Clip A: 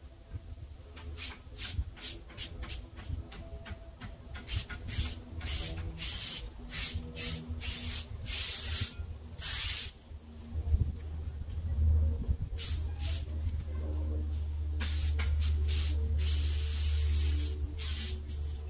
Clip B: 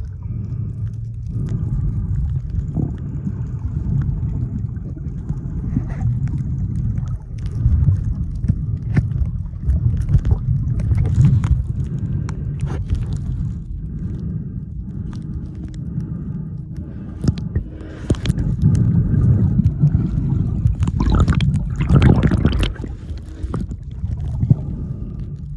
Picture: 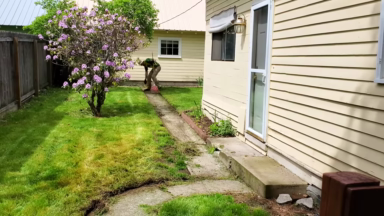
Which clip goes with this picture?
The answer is A